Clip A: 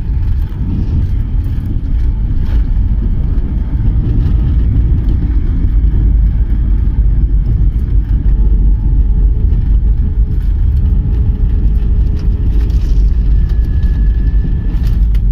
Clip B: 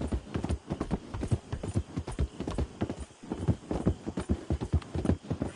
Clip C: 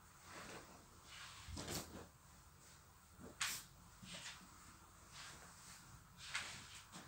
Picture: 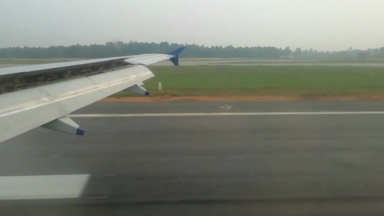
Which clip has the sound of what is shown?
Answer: A